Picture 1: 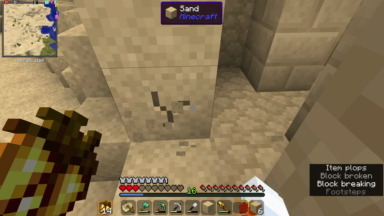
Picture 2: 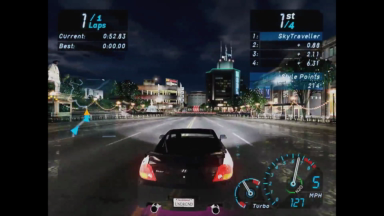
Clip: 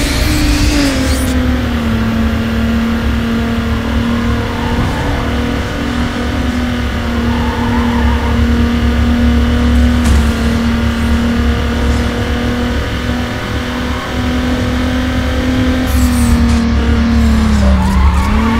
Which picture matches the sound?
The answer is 2